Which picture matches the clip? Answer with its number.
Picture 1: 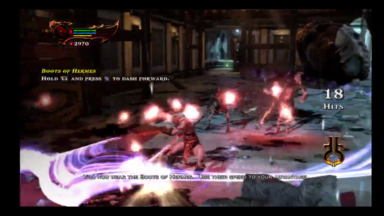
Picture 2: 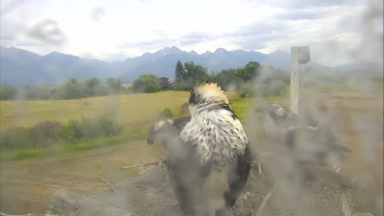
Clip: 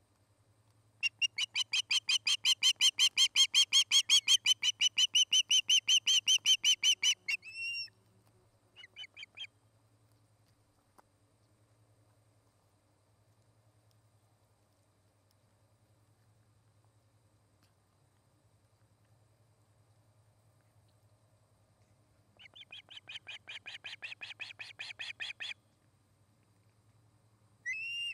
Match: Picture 2